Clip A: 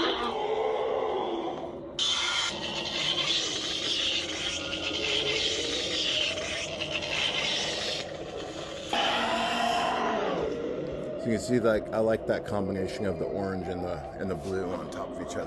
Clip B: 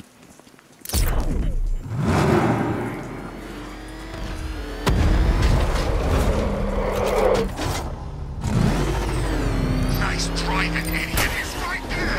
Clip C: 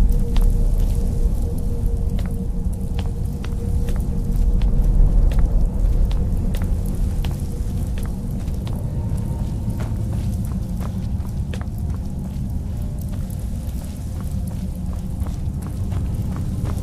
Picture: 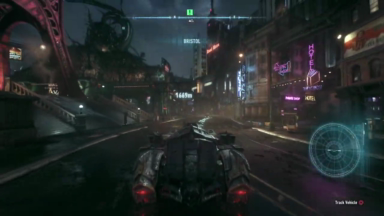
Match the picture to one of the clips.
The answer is B